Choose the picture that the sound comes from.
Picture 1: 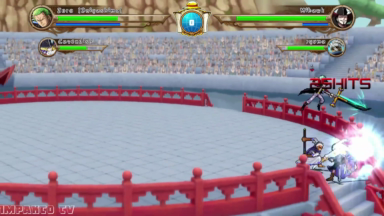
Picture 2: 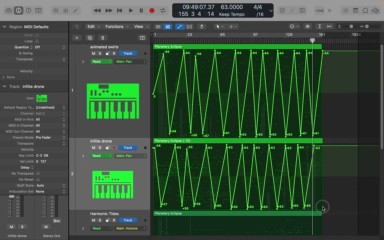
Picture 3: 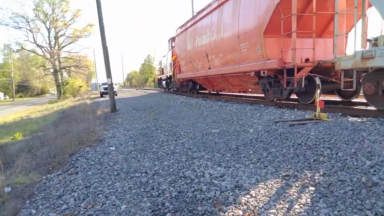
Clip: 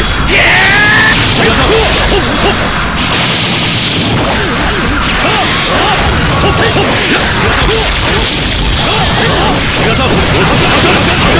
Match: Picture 1